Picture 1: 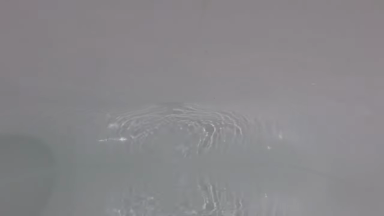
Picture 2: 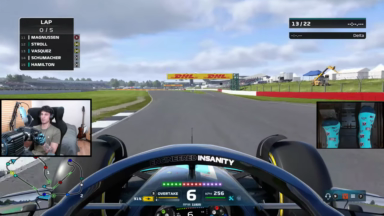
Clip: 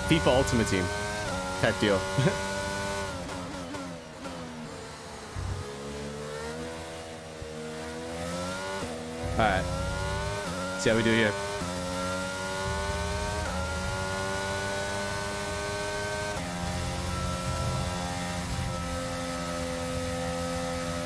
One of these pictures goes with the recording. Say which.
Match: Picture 2